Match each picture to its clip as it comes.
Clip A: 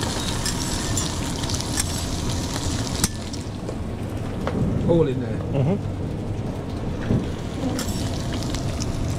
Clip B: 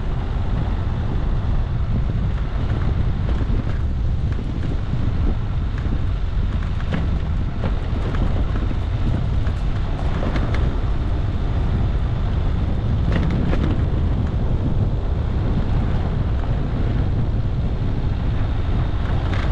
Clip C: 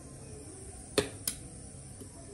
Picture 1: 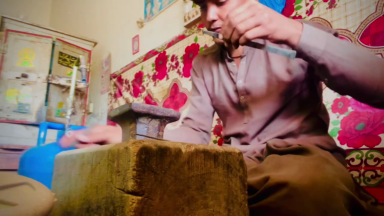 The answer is C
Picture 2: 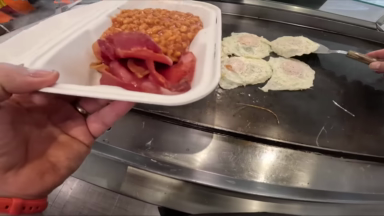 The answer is A